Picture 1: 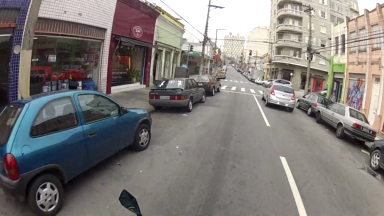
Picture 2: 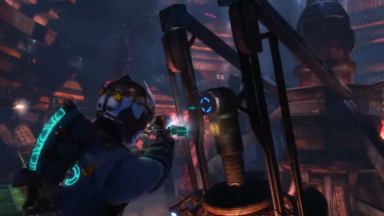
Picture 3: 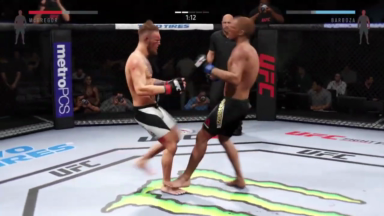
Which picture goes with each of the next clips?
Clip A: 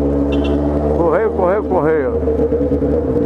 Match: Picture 1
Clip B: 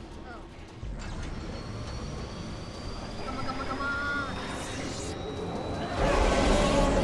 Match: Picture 2